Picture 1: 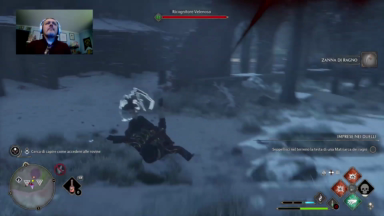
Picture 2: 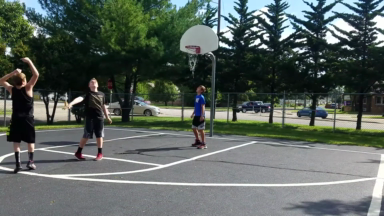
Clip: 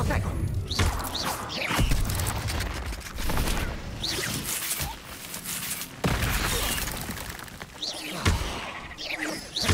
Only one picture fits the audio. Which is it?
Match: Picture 1